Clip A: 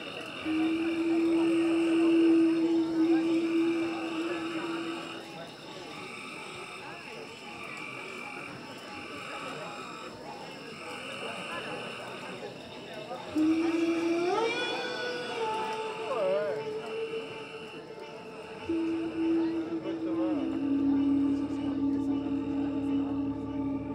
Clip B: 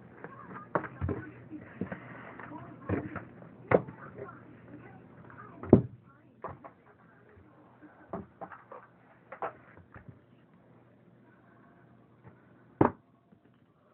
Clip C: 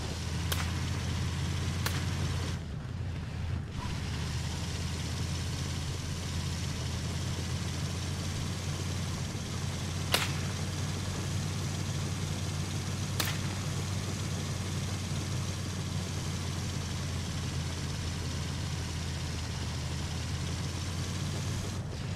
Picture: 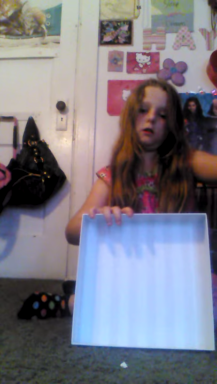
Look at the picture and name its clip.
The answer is B